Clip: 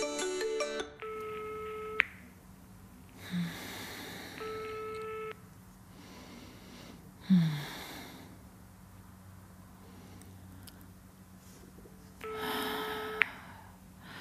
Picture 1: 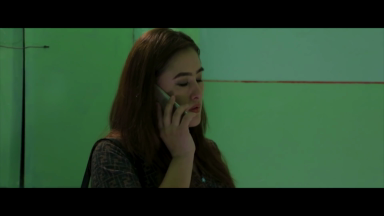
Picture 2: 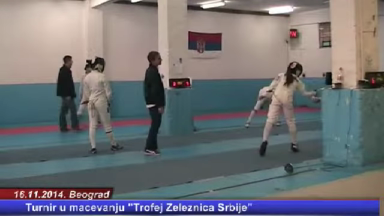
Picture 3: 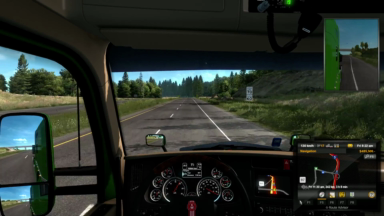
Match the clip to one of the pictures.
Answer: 1